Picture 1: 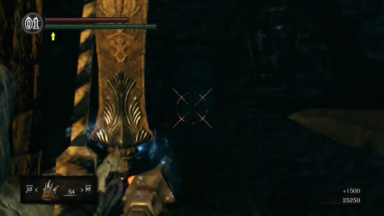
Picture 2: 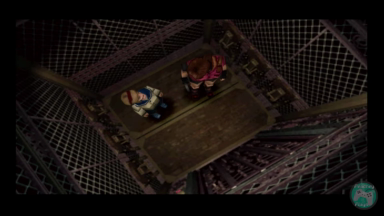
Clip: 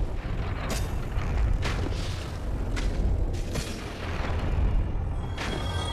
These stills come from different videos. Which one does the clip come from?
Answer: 1